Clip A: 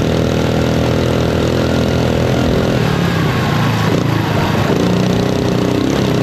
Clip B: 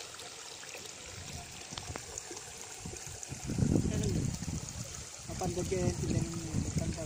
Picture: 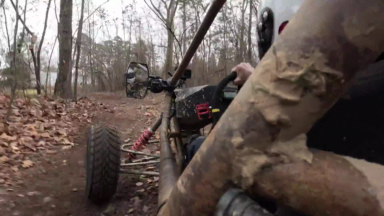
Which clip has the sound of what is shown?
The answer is A